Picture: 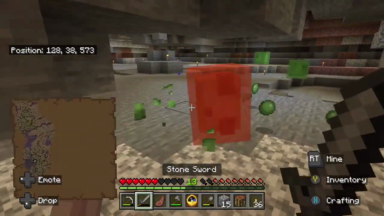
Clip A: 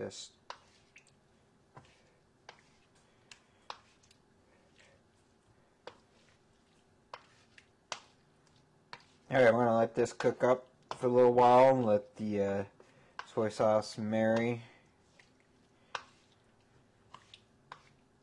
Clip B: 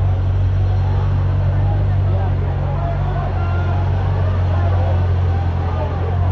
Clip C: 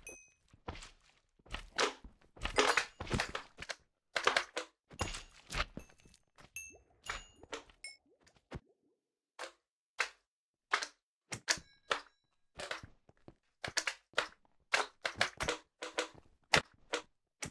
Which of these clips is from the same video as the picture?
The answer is C